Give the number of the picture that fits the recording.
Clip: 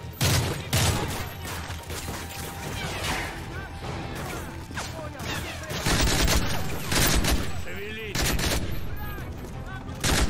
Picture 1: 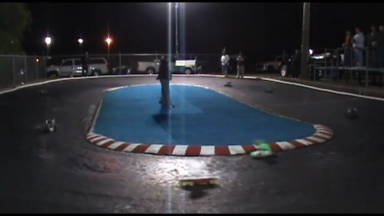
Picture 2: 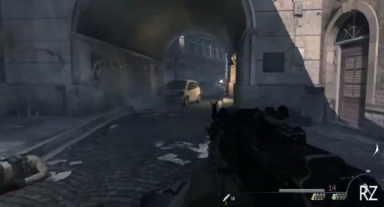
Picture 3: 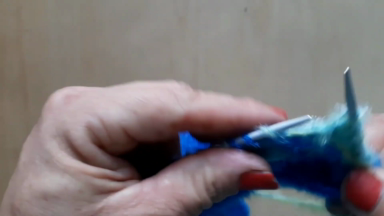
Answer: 2